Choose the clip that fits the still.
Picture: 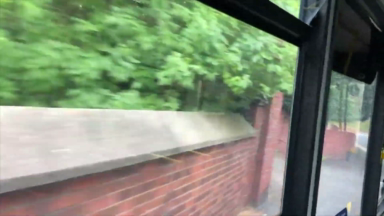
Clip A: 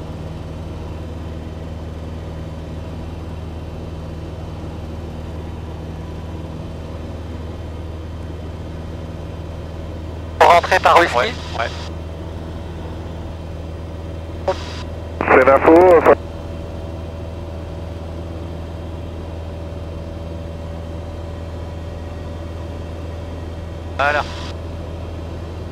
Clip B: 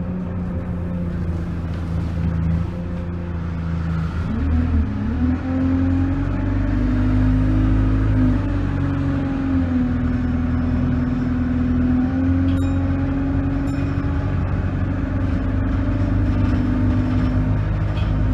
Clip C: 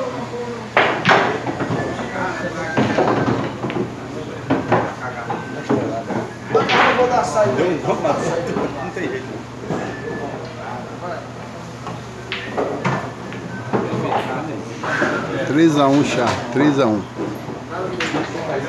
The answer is B